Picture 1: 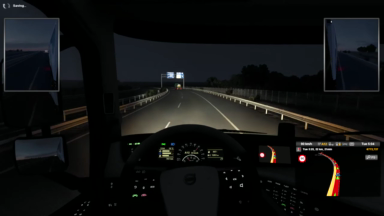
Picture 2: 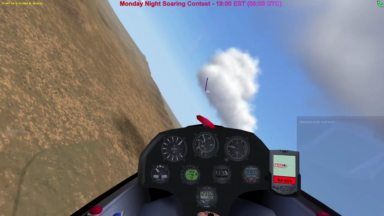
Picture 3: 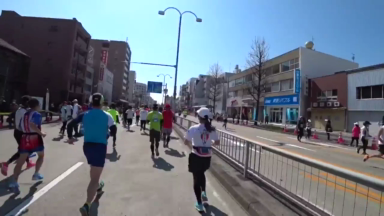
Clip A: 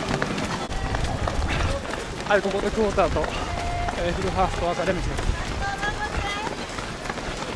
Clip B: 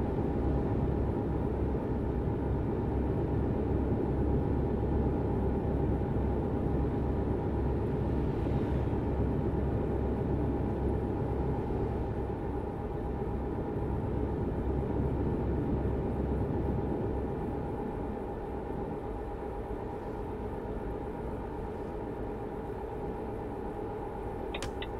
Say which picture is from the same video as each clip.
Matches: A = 3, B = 1